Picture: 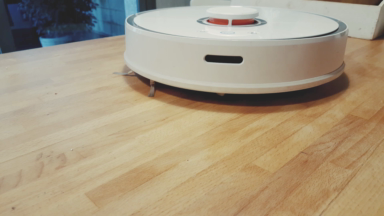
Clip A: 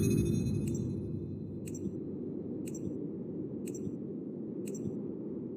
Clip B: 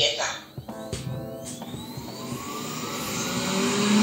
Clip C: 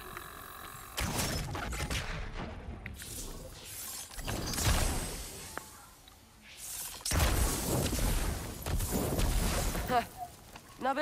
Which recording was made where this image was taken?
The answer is B